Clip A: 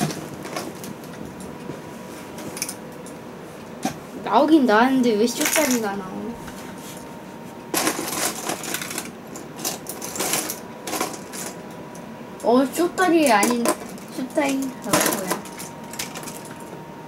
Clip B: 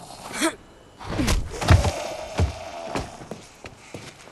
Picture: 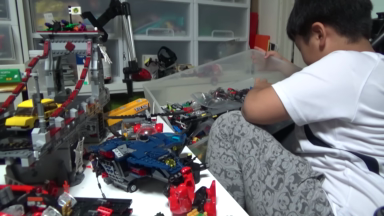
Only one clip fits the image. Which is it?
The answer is A